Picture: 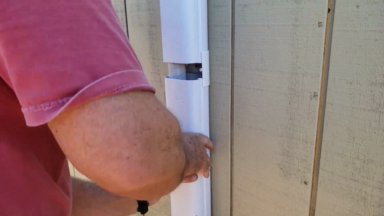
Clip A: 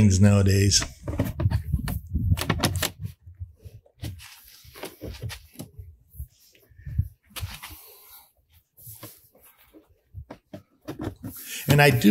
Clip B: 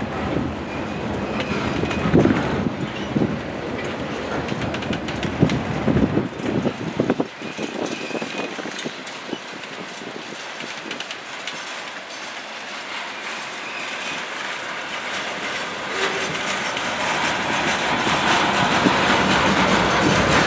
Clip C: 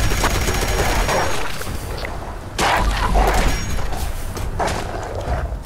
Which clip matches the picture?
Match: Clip A